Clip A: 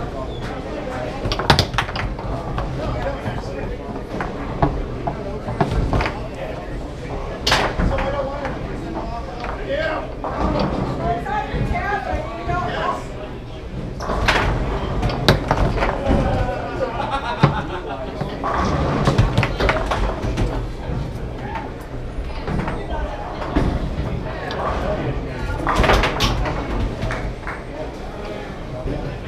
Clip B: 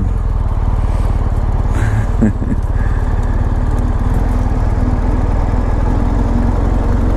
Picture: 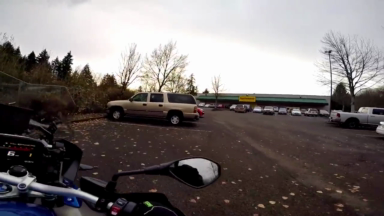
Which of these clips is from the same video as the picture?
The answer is B